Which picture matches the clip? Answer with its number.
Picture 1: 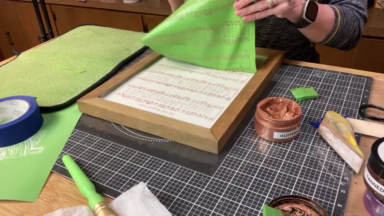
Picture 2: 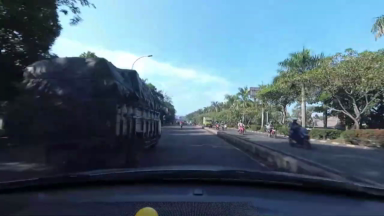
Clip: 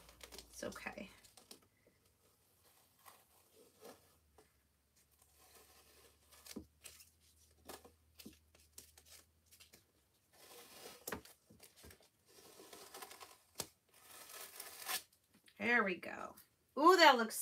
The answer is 1